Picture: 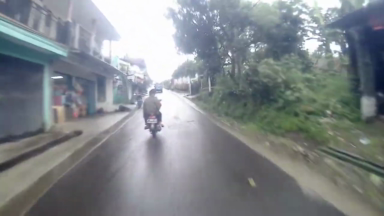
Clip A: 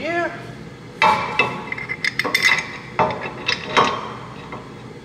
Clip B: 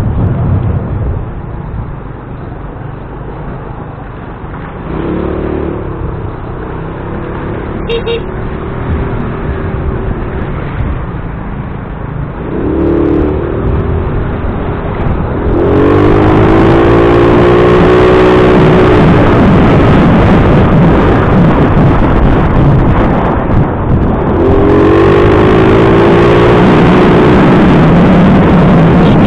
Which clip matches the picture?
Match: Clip B